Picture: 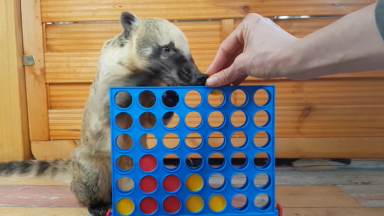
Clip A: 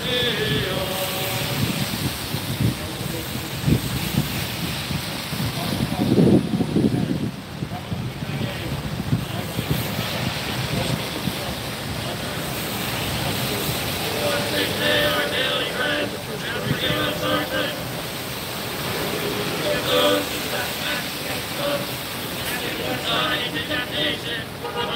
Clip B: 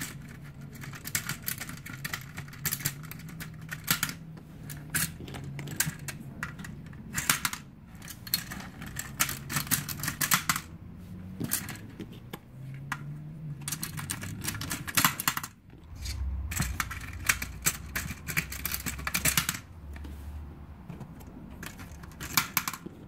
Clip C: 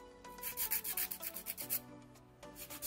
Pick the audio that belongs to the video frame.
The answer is B